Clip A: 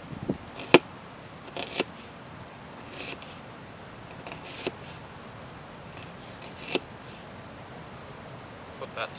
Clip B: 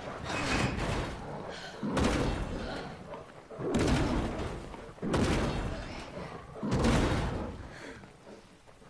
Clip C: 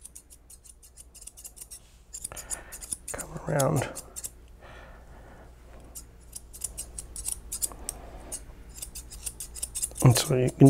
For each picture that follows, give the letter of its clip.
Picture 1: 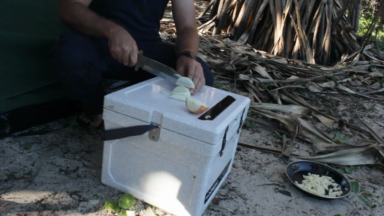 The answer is A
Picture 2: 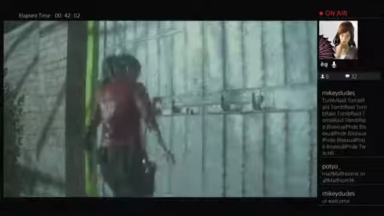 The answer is B